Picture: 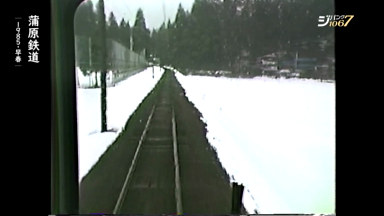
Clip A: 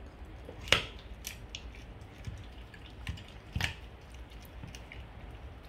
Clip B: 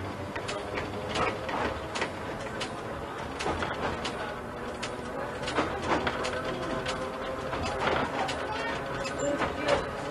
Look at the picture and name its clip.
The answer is B